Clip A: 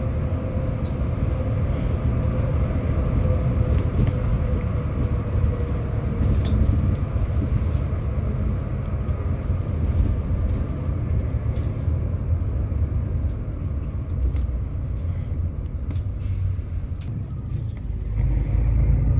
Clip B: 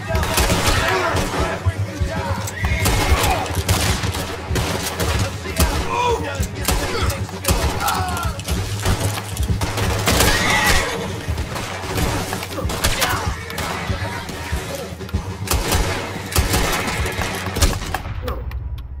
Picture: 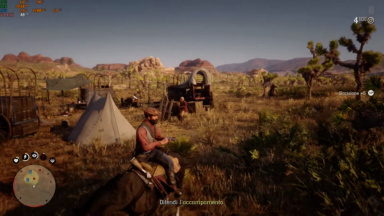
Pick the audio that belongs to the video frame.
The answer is B